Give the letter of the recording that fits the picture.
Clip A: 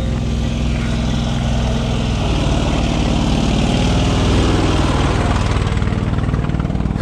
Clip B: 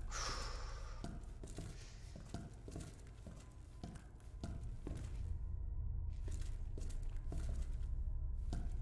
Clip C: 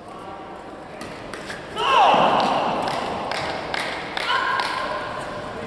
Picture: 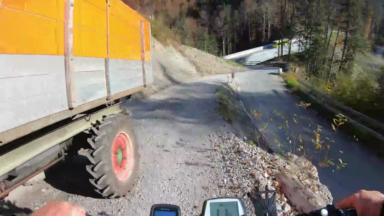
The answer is A